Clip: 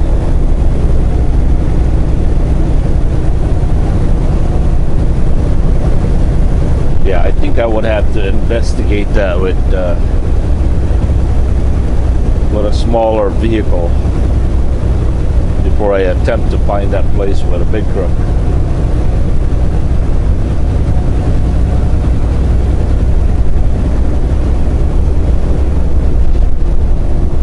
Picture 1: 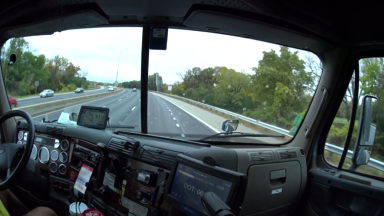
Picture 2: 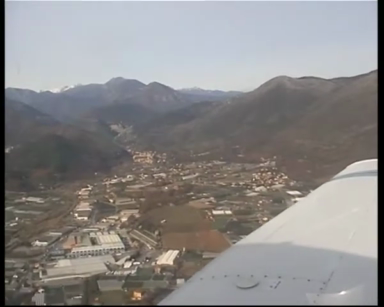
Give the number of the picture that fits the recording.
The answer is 1